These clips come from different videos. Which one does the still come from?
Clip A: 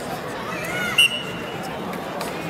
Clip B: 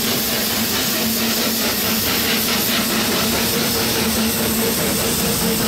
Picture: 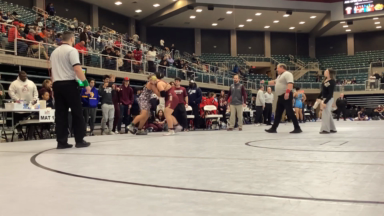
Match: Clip A